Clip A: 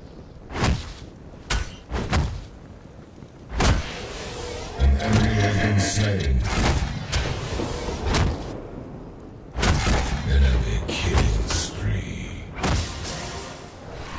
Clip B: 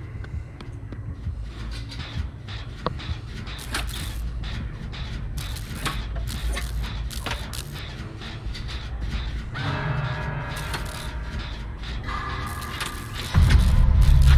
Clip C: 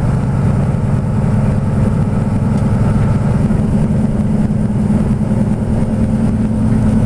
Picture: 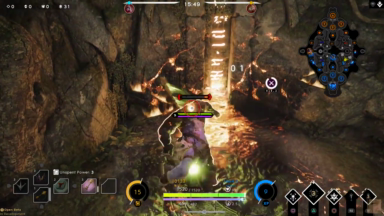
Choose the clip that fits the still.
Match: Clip A